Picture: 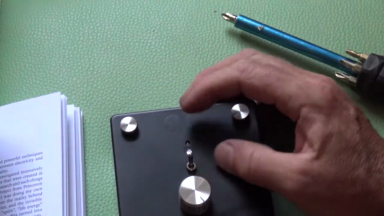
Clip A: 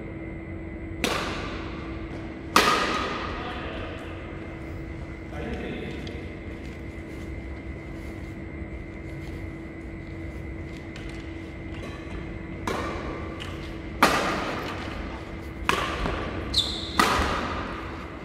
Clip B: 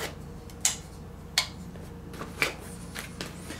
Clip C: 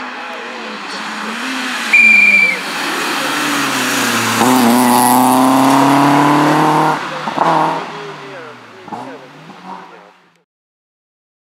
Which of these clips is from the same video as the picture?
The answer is B